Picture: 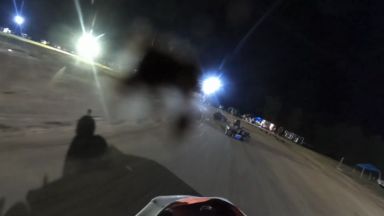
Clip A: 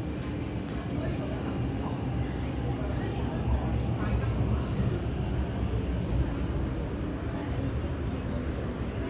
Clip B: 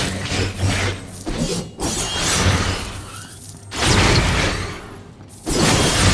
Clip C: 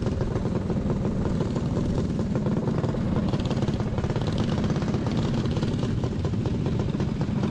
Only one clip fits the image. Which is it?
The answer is C